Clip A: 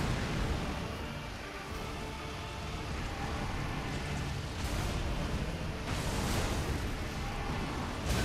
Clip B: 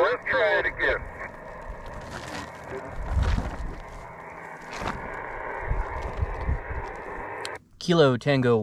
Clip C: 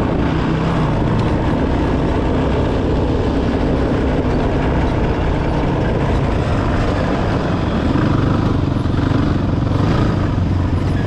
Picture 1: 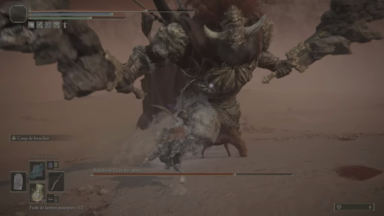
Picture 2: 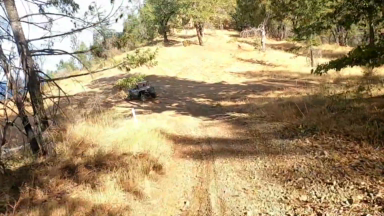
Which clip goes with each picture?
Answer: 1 A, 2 C